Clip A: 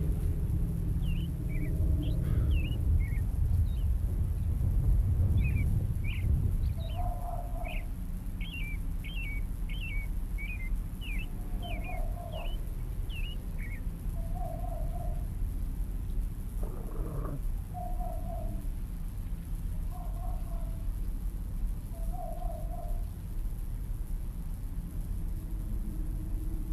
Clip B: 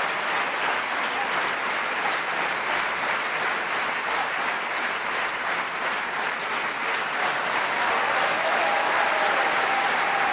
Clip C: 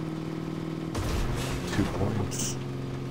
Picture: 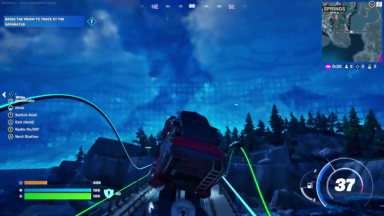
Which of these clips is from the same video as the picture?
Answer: C